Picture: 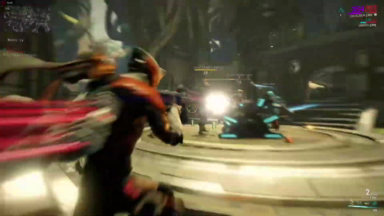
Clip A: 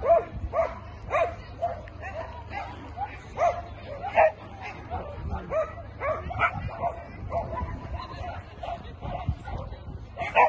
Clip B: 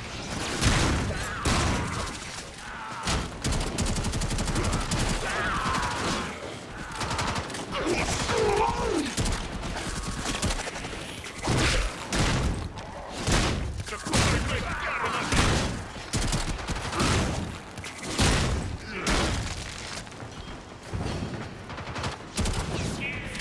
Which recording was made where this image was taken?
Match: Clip B